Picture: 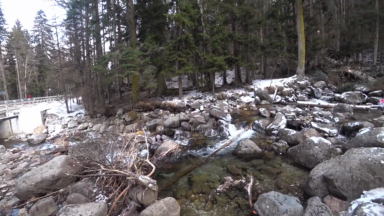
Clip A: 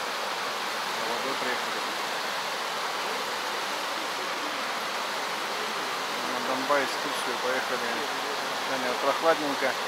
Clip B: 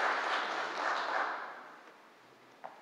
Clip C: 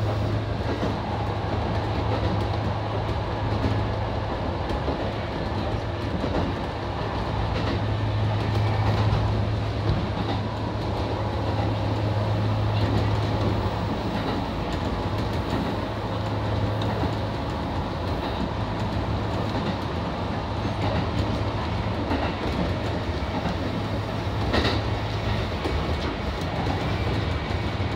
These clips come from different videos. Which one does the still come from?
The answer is A